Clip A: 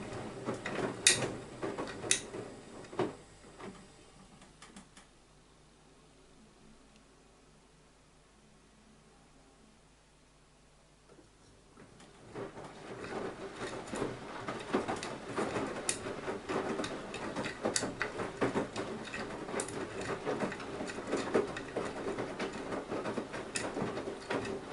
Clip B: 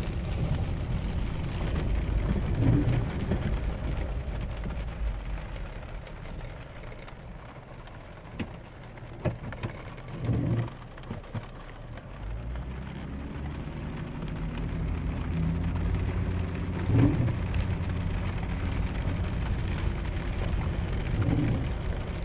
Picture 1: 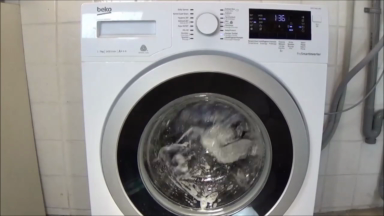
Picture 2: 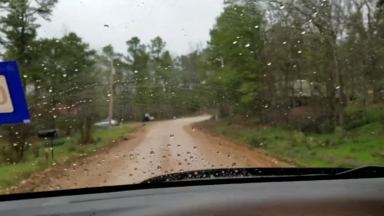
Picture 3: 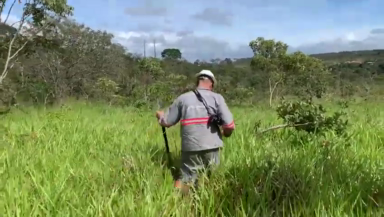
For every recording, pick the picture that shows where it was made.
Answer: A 1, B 2